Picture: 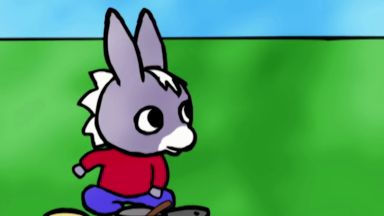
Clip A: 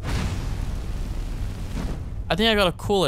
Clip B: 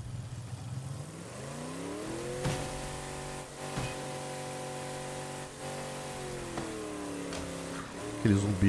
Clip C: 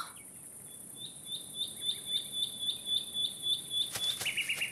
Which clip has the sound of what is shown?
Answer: C